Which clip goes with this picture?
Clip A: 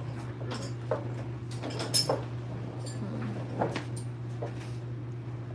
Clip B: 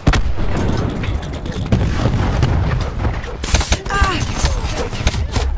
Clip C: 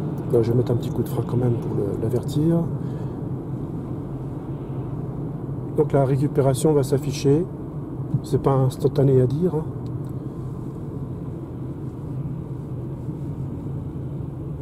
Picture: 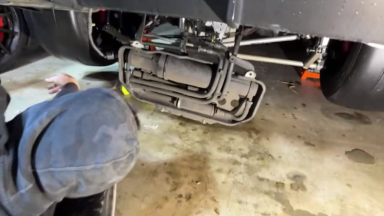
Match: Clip A